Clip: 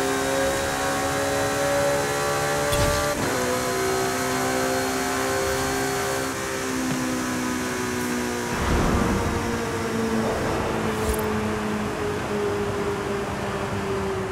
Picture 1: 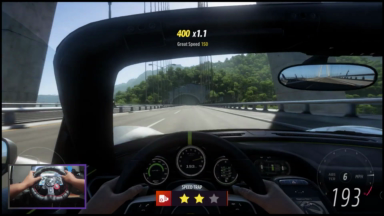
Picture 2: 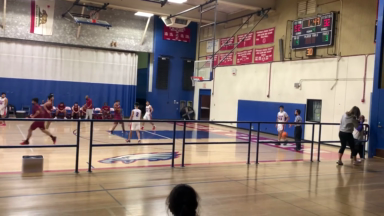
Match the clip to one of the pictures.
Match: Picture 1